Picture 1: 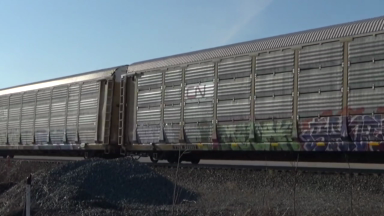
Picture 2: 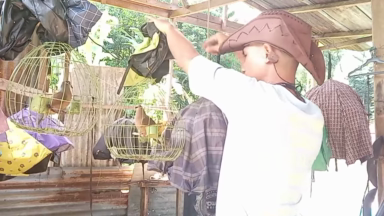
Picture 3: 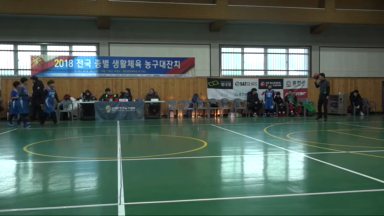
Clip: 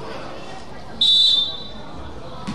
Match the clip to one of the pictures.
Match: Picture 3